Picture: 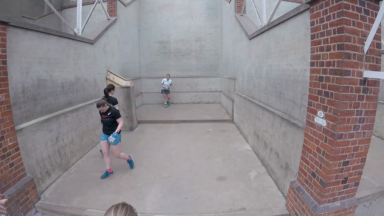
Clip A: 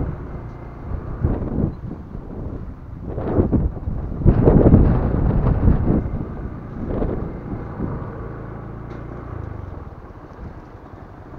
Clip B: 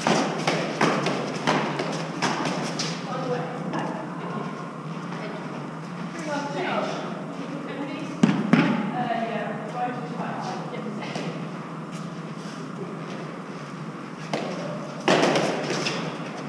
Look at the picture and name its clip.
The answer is B